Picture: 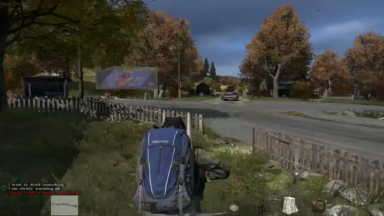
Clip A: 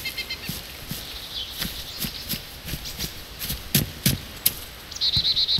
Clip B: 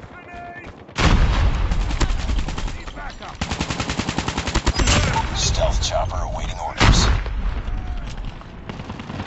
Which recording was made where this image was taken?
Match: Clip A